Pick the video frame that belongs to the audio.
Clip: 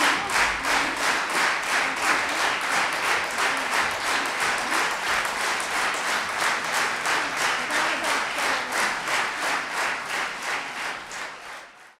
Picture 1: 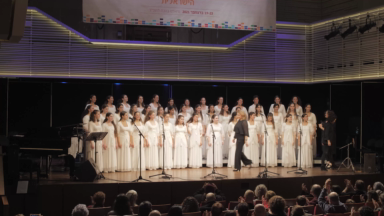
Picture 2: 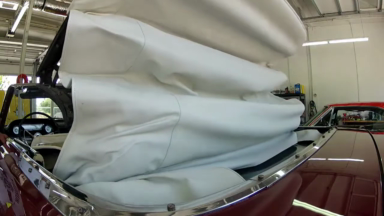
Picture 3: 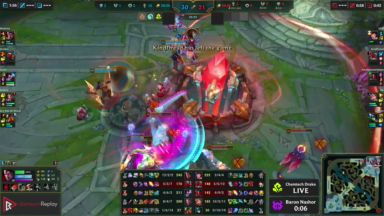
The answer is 1